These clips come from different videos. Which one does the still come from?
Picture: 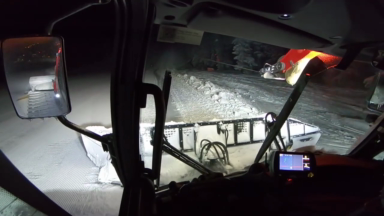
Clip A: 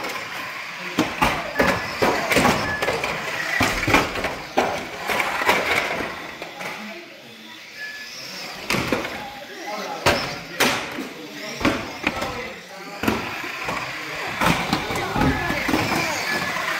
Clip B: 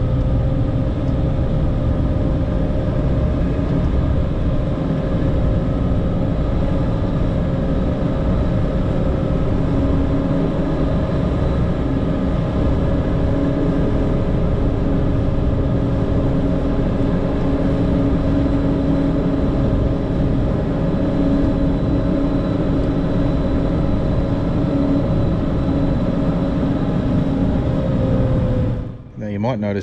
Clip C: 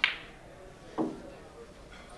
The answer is B